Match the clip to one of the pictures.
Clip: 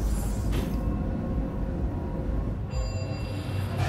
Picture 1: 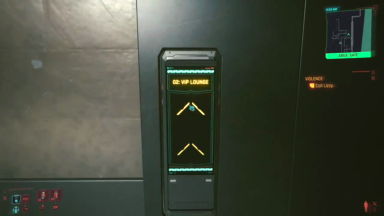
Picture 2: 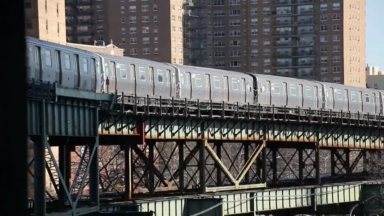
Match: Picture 1